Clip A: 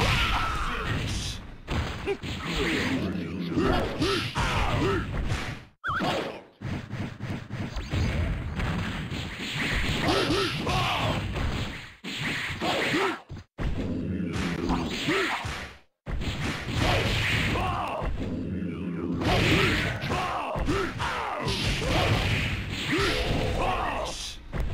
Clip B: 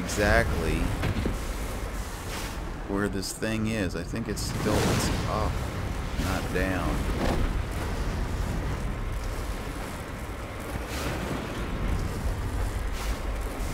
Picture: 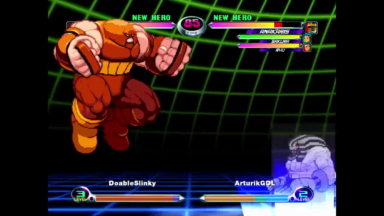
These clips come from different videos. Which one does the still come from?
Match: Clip A